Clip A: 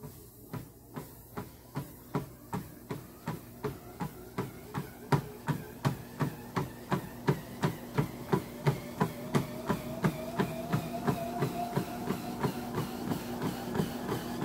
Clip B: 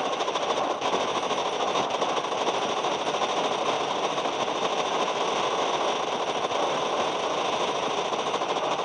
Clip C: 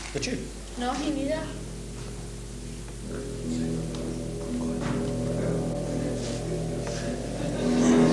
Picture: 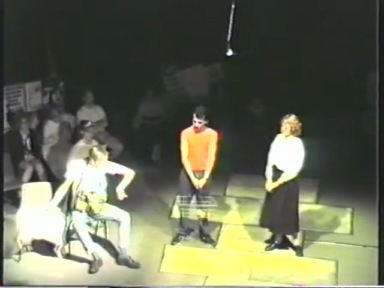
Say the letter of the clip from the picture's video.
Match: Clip C